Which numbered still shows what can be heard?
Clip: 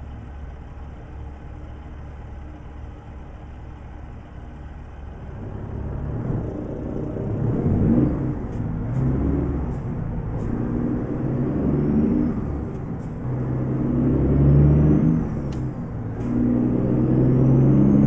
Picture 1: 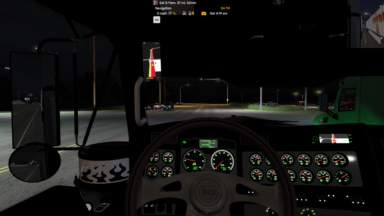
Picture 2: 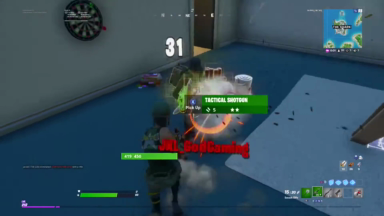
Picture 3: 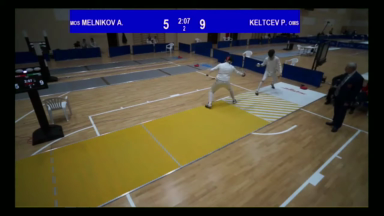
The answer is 1